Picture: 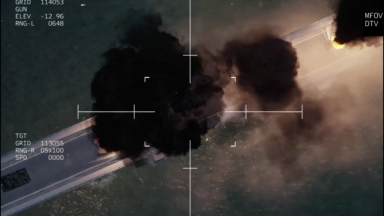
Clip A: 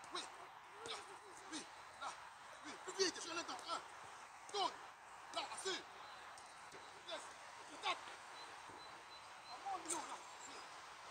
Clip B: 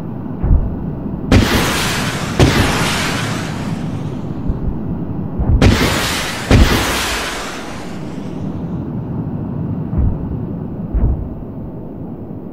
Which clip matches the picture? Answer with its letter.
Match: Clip B